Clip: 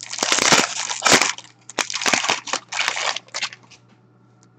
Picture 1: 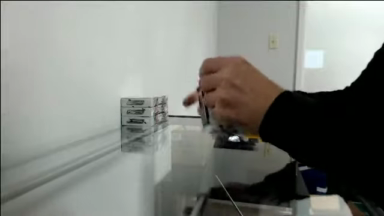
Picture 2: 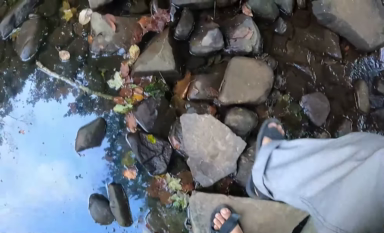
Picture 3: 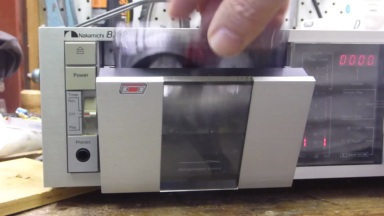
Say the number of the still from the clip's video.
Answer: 1